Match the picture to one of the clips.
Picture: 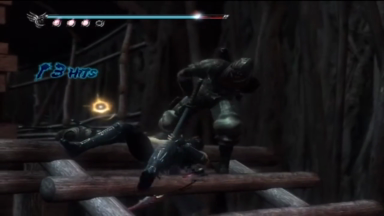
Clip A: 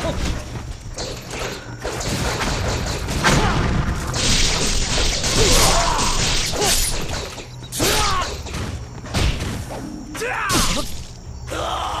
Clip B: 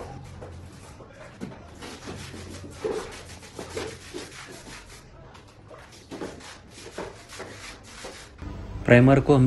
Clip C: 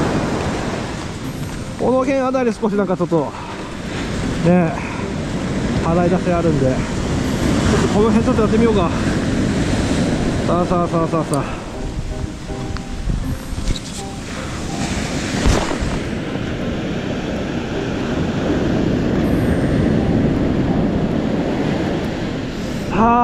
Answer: A